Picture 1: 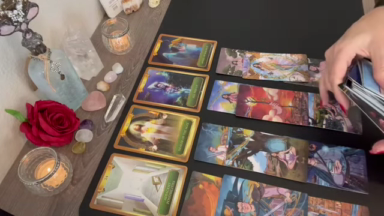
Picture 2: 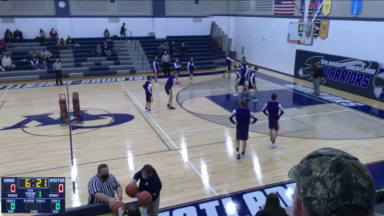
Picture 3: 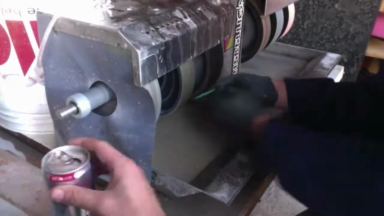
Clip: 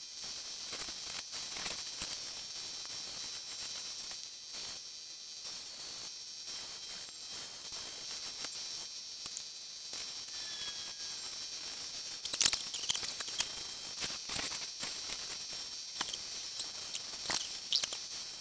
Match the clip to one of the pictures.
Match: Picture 3